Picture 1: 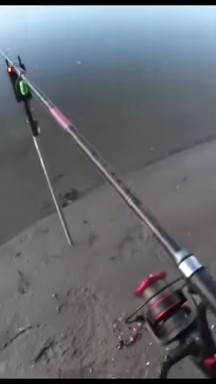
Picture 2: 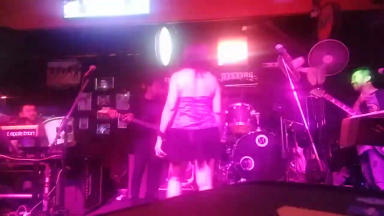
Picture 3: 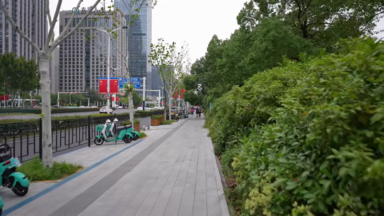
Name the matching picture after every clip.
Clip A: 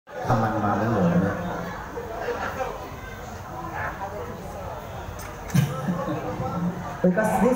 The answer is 2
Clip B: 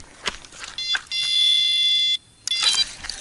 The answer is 1